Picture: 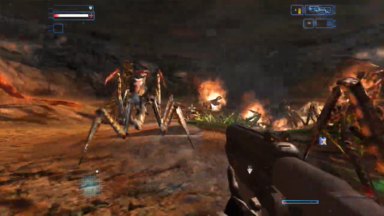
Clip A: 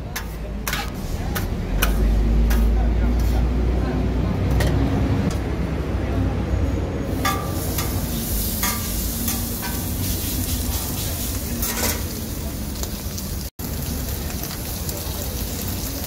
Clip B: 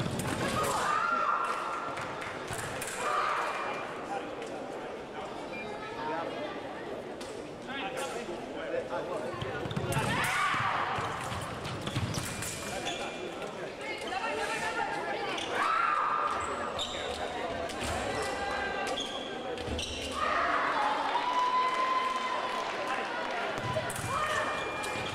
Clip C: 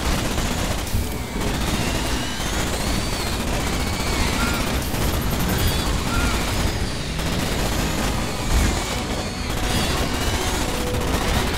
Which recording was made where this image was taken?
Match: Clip C